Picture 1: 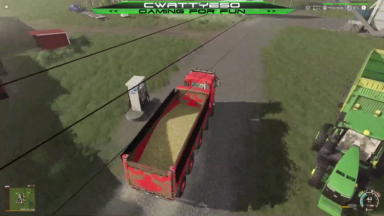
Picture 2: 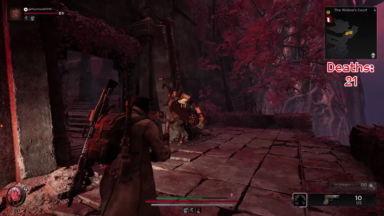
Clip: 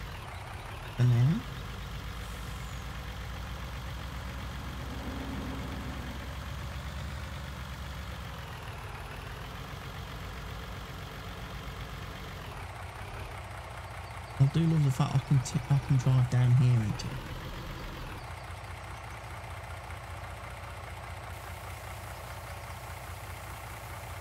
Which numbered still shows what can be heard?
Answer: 1